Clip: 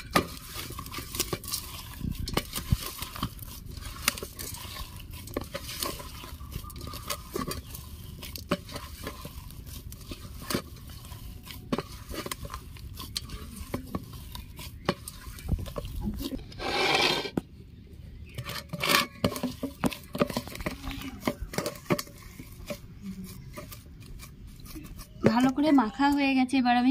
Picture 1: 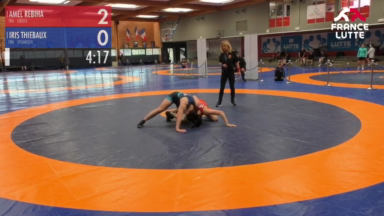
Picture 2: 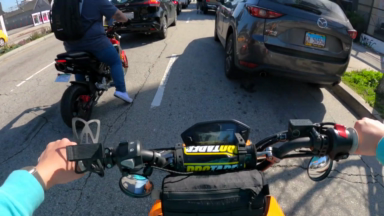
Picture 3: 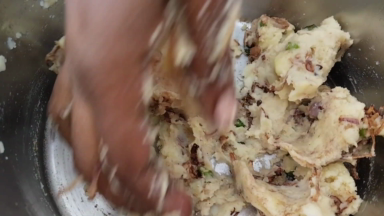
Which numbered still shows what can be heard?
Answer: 3